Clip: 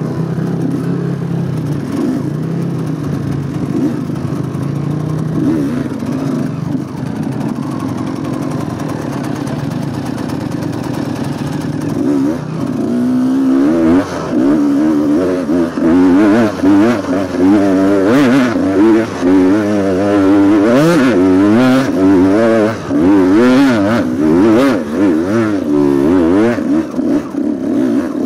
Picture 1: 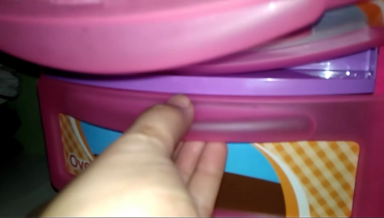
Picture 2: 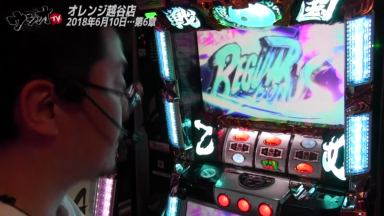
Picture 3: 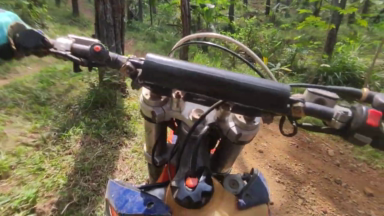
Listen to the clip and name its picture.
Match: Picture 3